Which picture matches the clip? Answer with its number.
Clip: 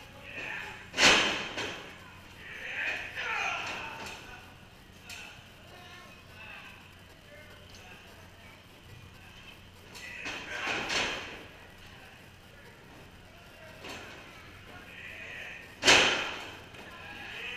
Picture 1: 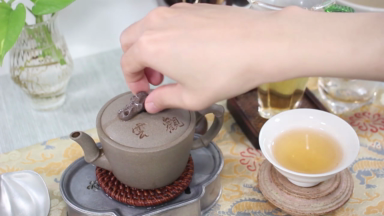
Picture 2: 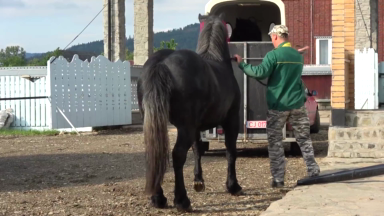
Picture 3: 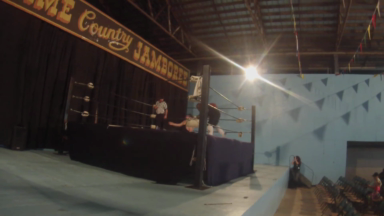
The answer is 3